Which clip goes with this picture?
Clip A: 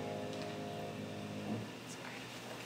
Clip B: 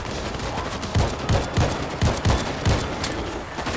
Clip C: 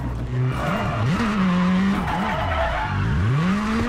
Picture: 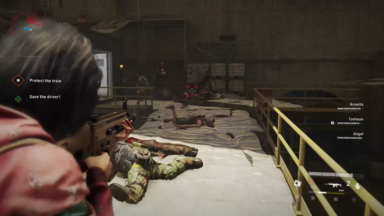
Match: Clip B